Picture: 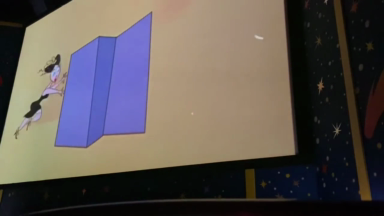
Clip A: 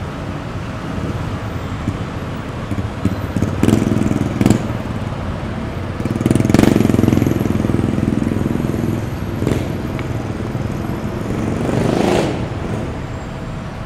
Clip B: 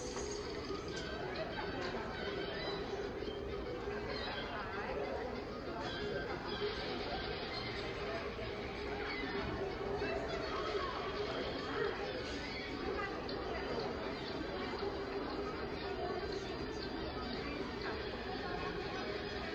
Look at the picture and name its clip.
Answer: B